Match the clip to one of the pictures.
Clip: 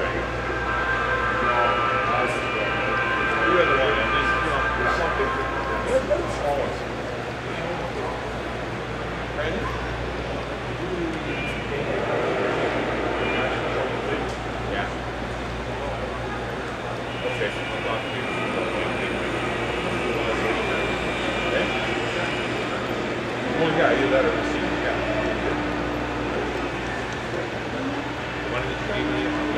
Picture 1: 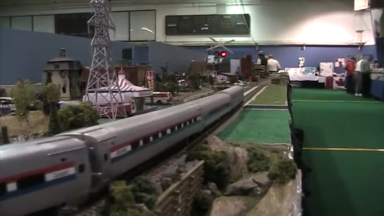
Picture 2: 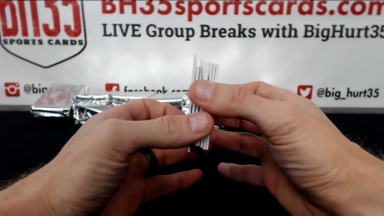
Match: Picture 1